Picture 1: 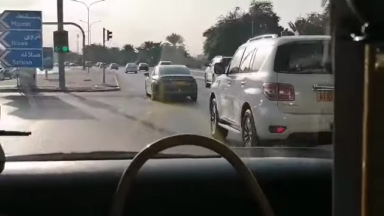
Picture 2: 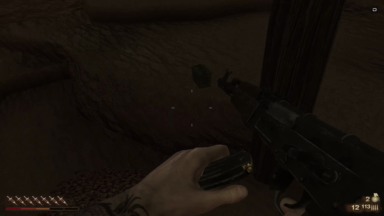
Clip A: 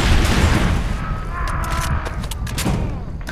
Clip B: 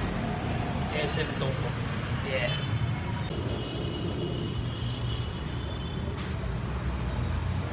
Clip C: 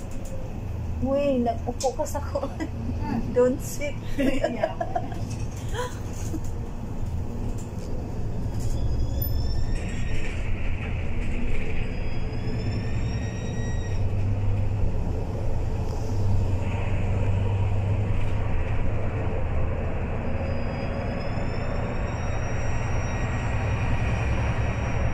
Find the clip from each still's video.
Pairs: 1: C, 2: A